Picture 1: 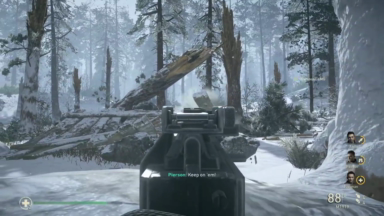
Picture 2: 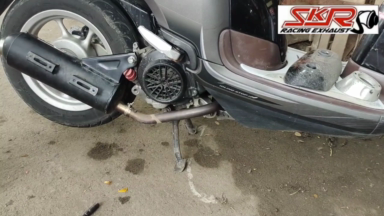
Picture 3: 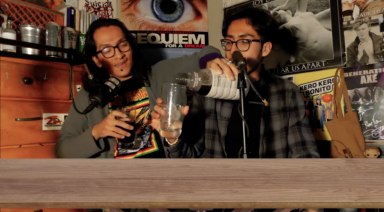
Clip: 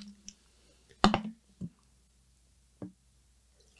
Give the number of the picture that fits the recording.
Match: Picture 3